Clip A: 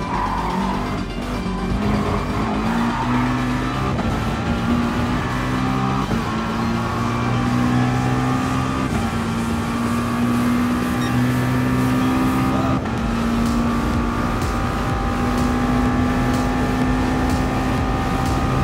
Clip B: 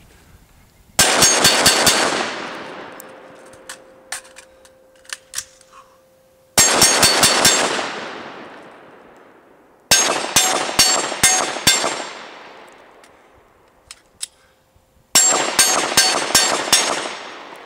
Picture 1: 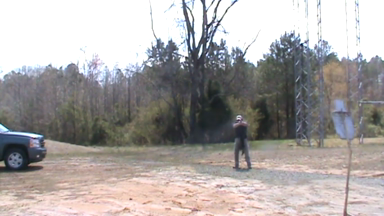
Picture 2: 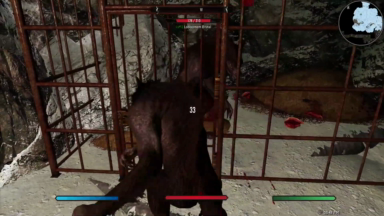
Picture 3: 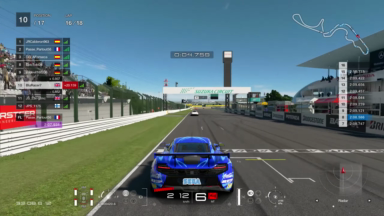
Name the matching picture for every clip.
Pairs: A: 3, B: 1